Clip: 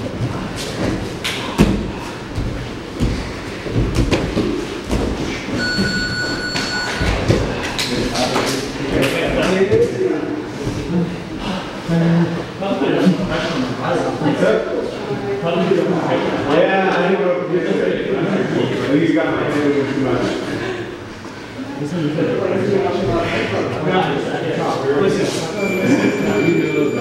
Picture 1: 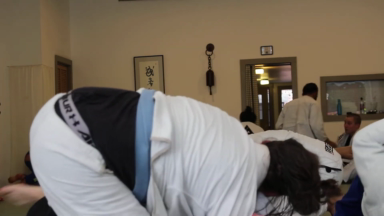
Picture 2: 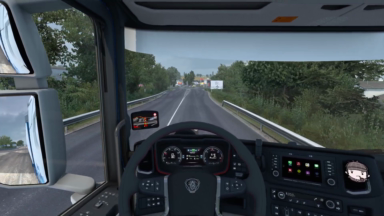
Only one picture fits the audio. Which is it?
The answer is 1